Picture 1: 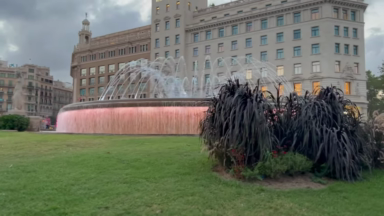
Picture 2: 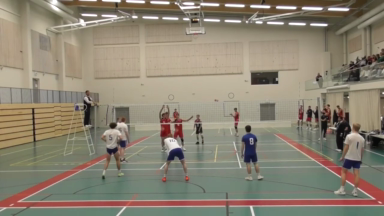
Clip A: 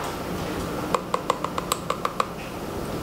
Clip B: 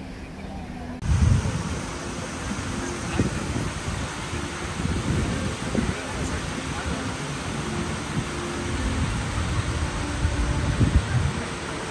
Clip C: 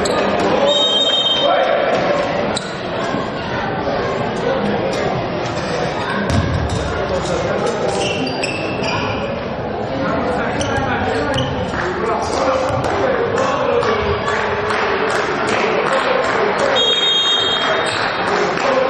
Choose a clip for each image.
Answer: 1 B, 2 C